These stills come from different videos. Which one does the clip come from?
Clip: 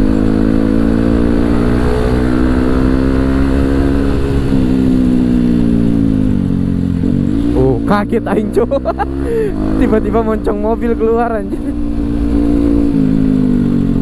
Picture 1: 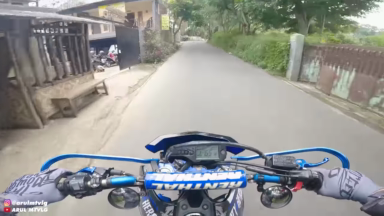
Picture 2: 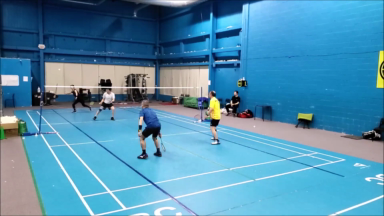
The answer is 1